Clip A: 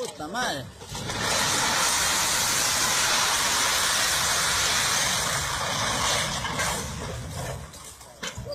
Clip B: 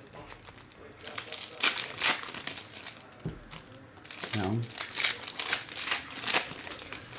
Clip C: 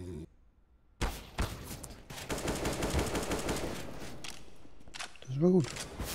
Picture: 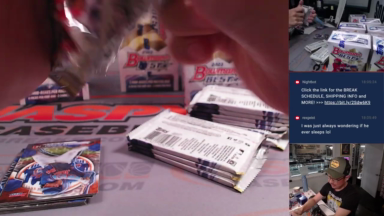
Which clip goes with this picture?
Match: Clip B